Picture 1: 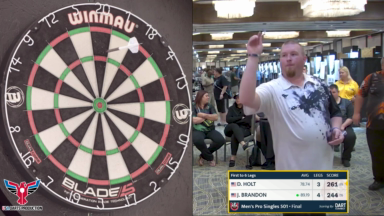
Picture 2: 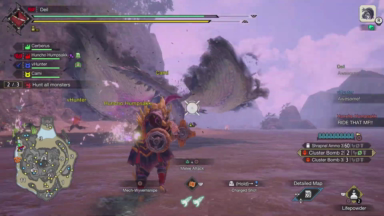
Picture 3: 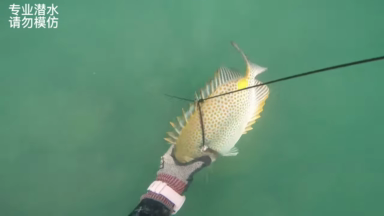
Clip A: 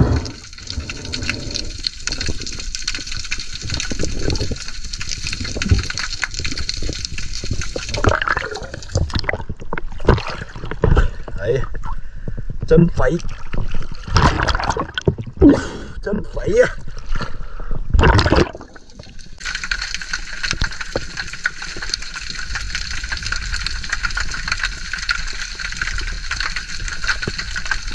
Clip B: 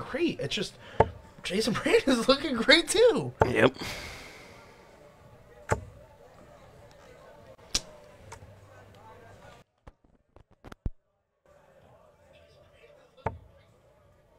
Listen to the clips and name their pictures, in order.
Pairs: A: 3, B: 1